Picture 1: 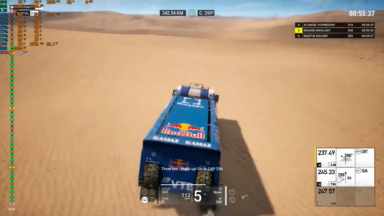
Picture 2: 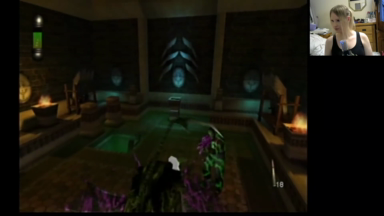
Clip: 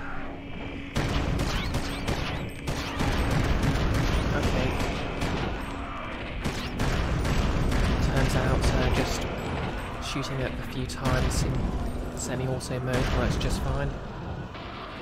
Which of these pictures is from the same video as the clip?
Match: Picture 2